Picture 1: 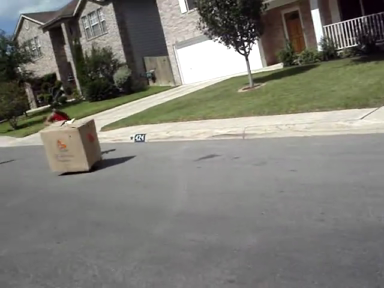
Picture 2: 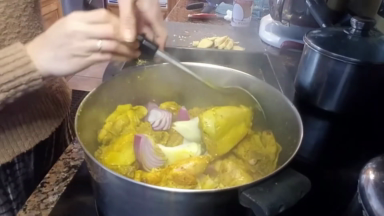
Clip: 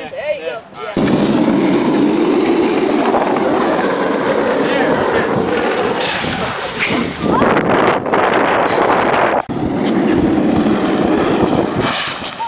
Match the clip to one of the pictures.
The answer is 1